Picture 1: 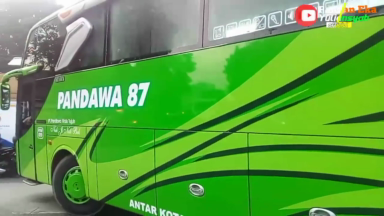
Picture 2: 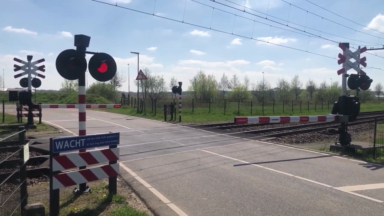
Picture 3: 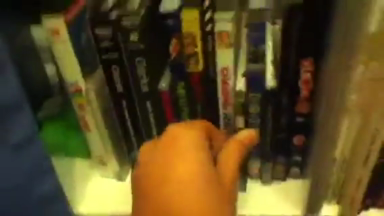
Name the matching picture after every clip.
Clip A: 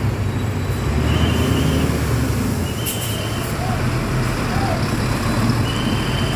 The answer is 1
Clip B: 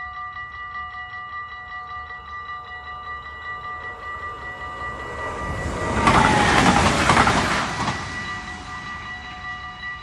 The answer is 2